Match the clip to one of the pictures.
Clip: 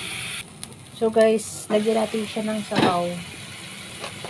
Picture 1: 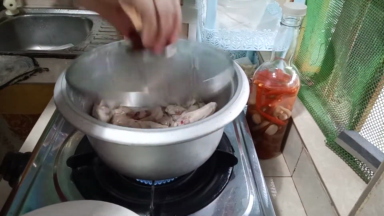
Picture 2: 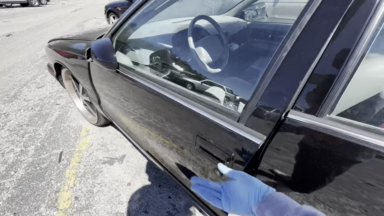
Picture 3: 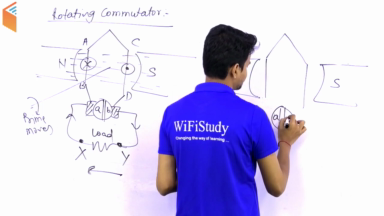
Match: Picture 1